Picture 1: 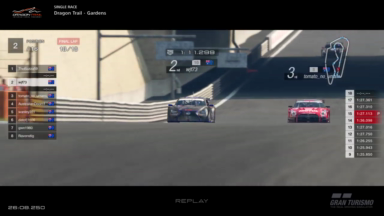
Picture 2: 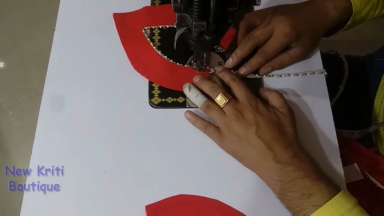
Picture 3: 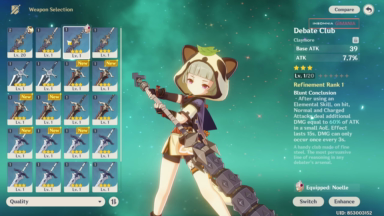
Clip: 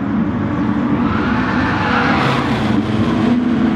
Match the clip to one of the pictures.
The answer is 1